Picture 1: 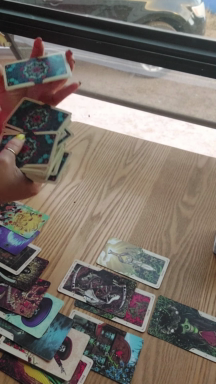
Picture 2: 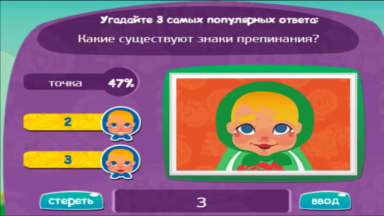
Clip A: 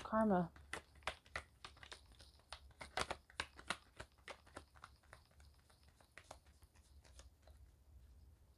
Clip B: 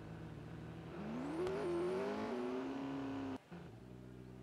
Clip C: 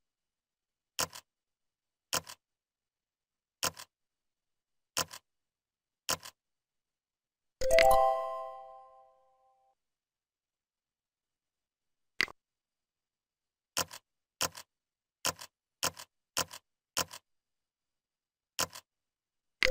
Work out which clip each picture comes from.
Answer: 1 A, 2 C